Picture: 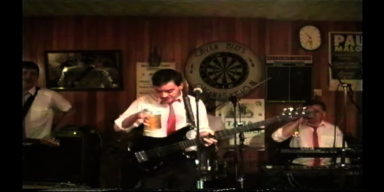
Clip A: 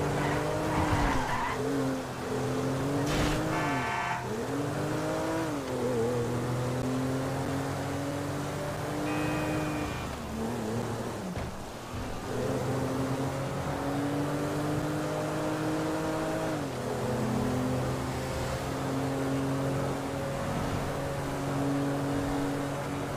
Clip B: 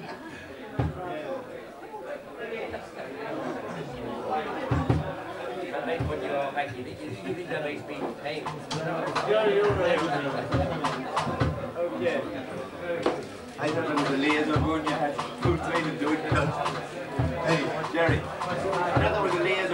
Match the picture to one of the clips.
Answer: B